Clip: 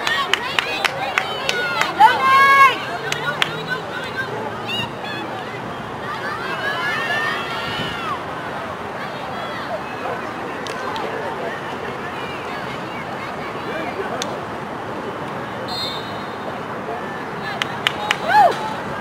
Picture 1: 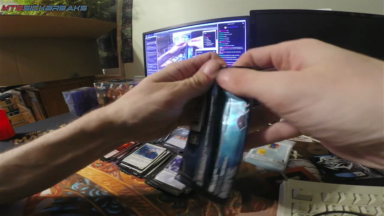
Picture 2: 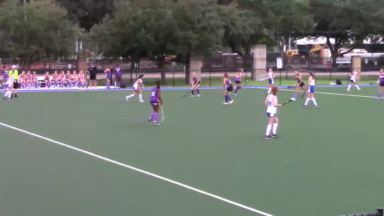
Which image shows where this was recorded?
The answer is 2